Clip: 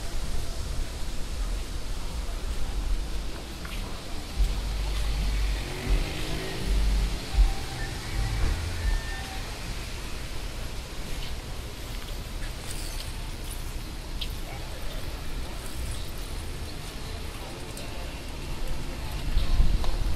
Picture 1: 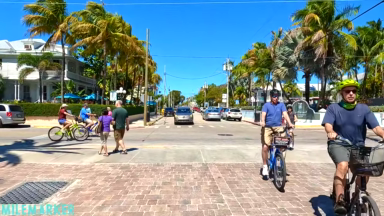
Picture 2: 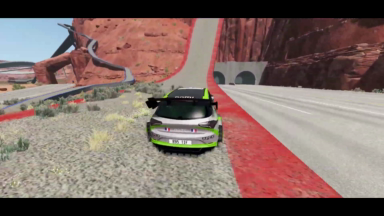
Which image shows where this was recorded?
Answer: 1